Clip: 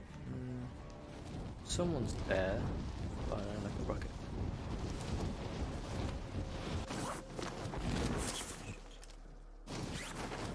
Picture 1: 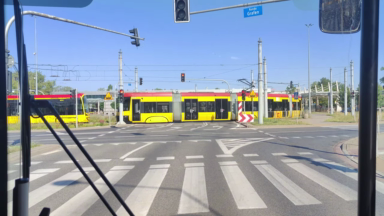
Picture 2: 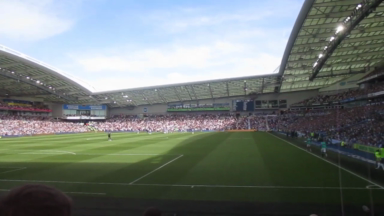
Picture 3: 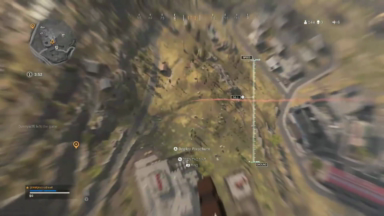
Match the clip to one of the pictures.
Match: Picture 3